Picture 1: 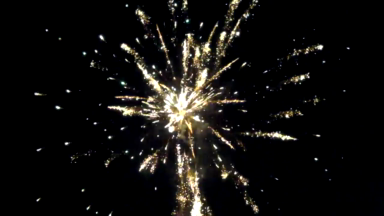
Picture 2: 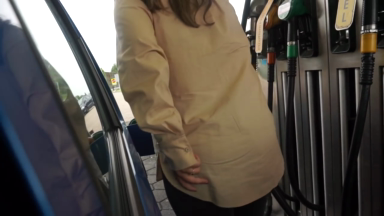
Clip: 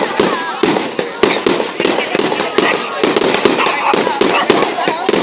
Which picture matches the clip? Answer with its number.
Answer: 1